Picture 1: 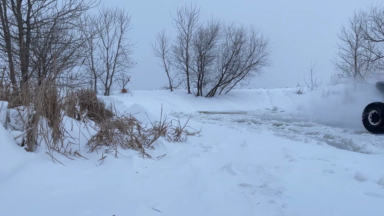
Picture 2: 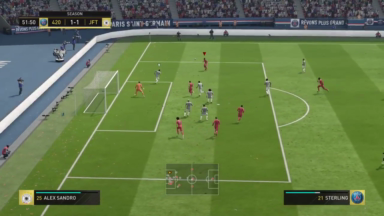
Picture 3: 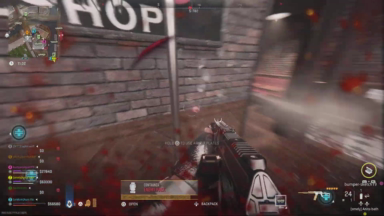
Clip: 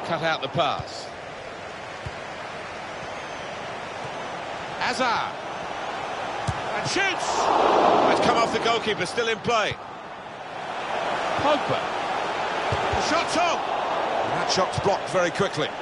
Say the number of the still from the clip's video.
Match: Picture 2